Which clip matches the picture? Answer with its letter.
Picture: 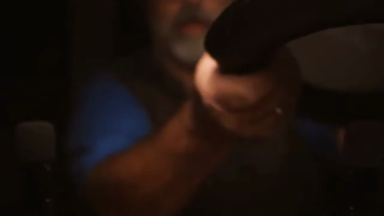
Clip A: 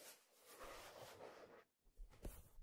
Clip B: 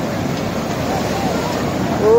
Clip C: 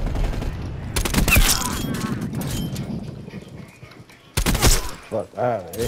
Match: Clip A